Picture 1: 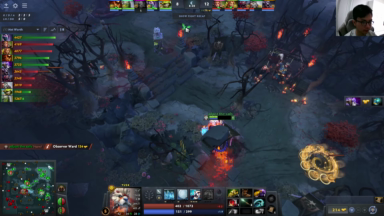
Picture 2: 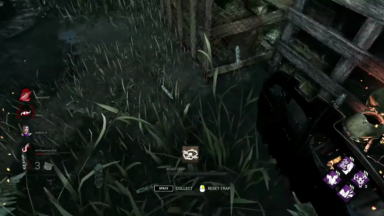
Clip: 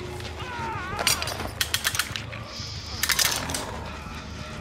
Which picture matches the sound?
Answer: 2